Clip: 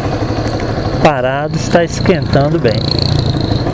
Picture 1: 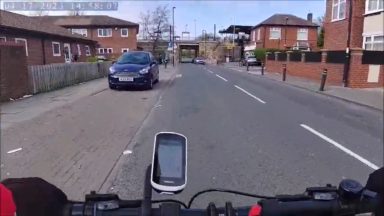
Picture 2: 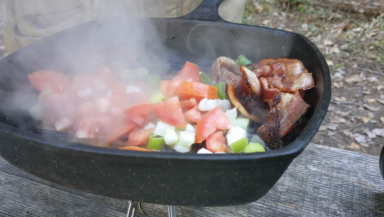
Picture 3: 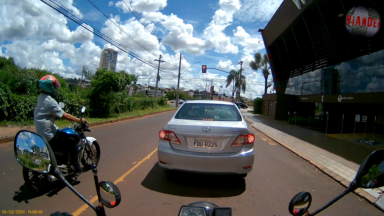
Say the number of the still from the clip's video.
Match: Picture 3